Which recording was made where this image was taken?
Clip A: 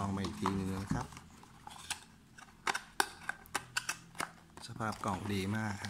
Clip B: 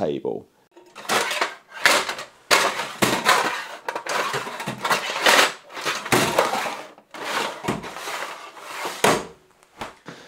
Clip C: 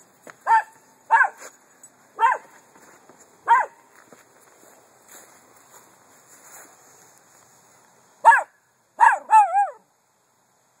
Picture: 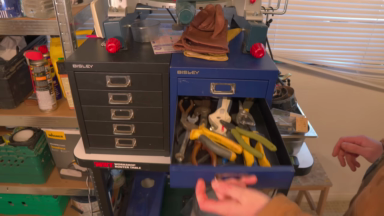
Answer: B